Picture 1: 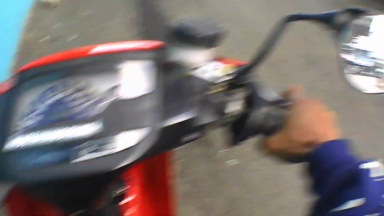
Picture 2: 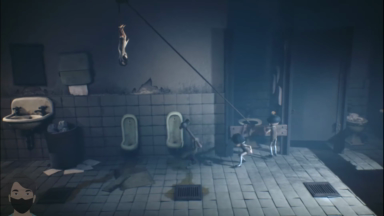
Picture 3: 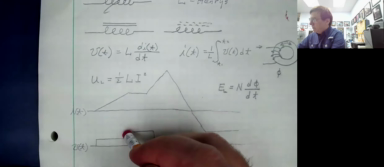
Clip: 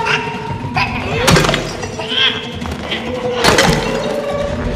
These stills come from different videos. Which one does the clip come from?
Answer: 2